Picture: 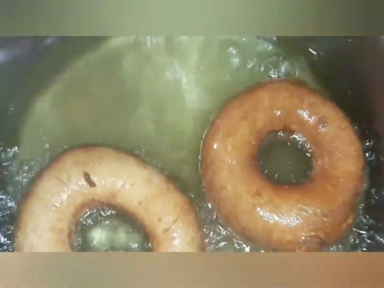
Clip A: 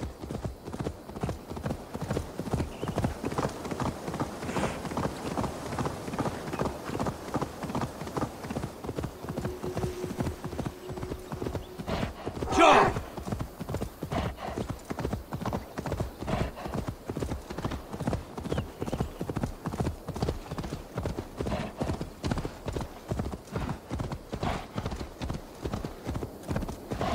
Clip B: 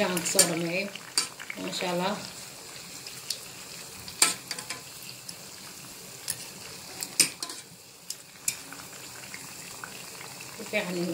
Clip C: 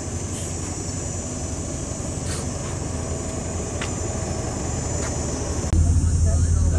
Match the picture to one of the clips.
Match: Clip B